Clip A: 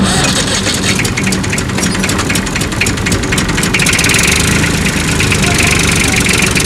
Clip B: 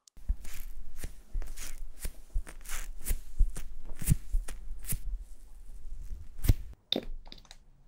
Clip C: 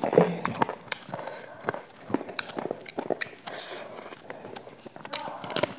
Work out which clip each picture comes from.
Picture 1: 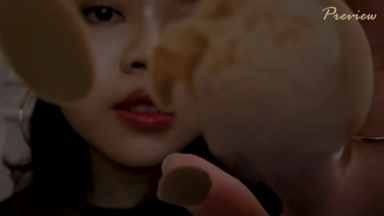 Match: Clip B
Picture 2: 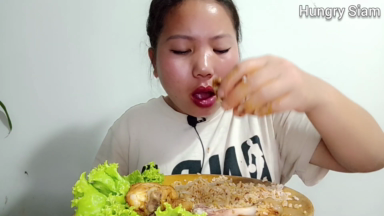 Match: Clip C